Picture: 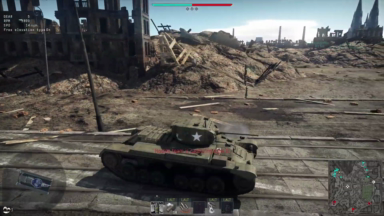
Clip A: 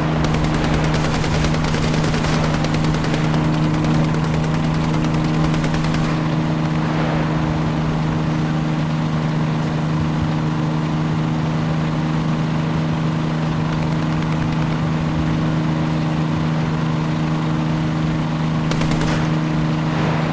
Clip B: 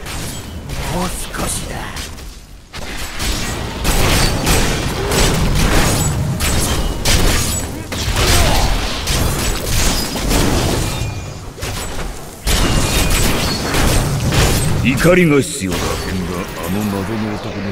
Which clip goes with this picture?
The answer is A